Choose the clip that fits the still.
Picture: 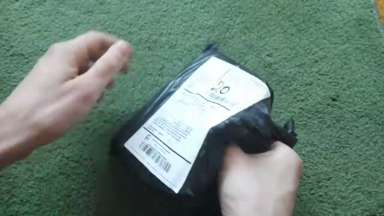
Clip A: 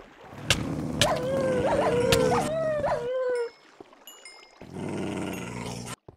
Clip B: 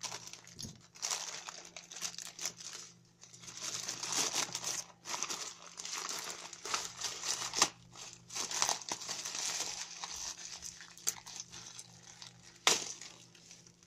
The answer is B